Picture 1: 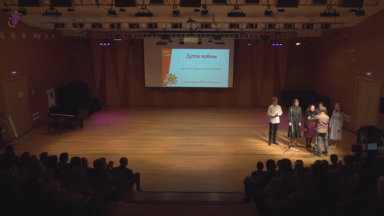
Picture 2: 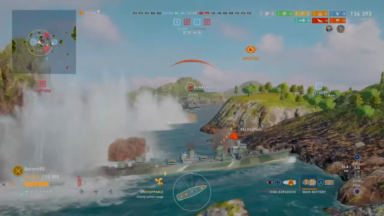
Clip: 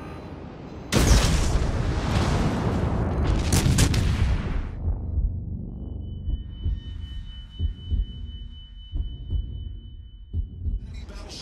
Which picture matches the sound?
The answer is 2